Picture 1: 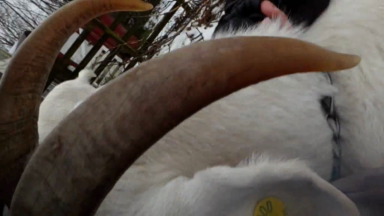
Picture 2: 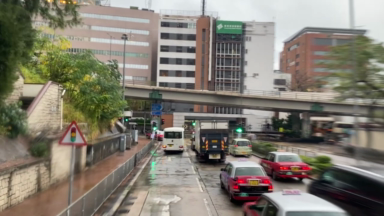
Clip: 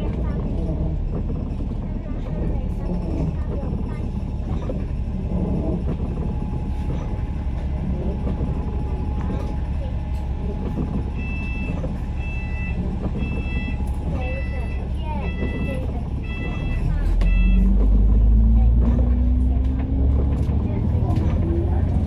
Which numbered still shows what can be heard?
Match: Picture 2